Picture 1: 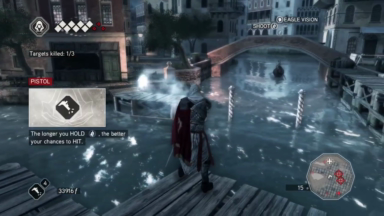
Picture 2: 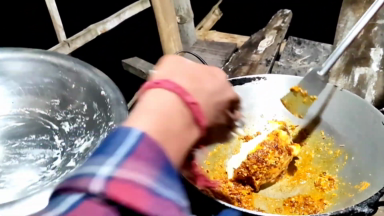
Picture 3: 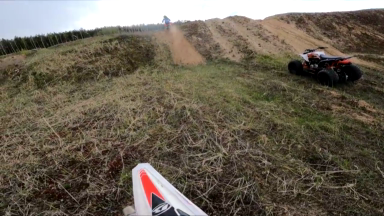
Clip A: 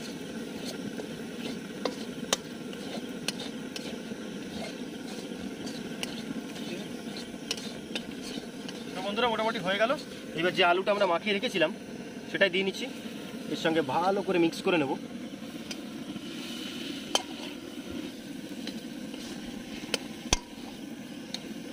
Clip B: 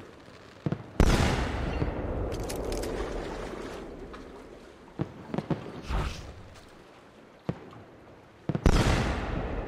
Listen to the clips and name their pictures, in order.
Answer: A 2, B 1